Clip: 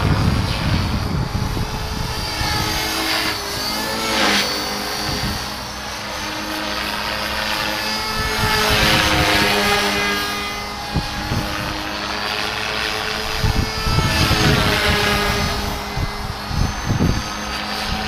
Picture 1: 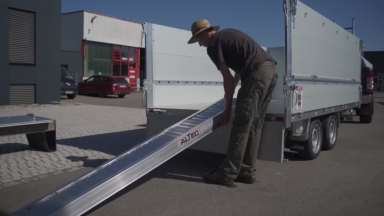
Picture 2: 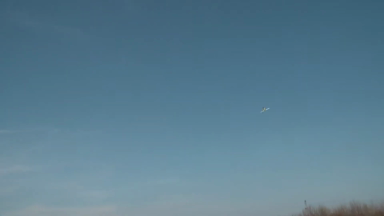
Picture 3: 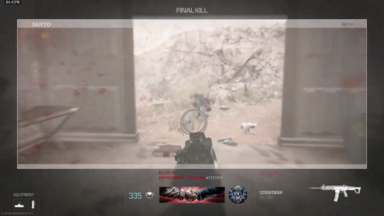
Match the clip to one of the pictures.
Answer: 2